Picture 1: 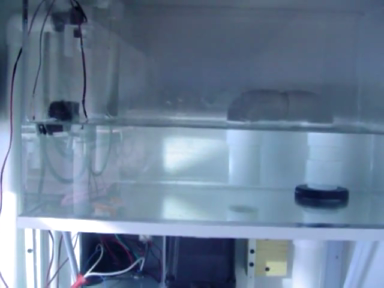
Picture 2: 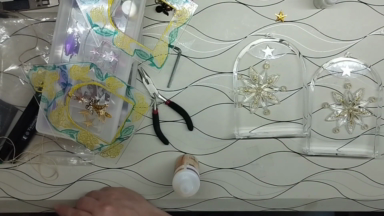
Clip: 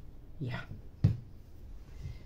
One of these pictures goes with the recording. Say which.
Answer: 2